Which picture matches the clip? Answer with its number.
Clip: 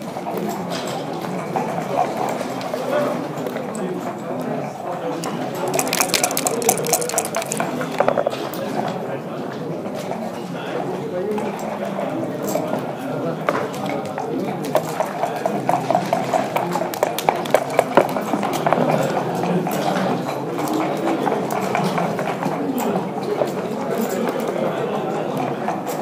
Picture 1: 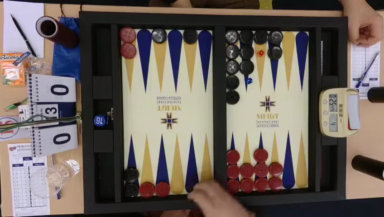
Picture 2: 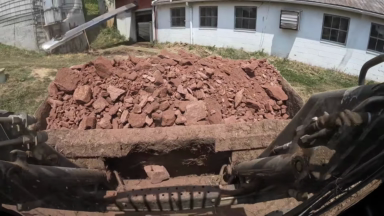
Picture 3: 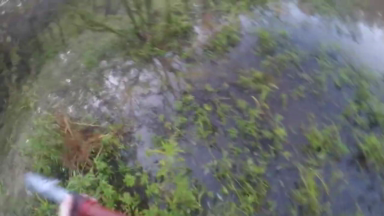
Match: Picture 1